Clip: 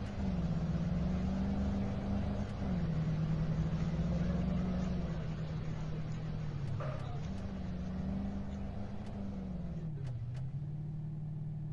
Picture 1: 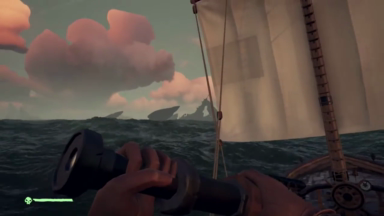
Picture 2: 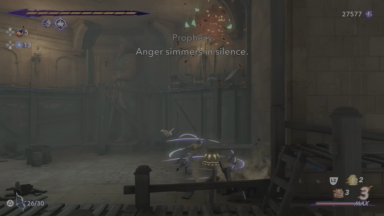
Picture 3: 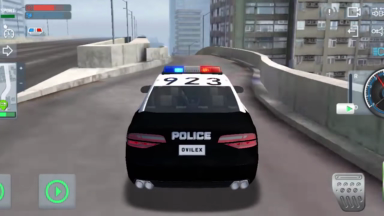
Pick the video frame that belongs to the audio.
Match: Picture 3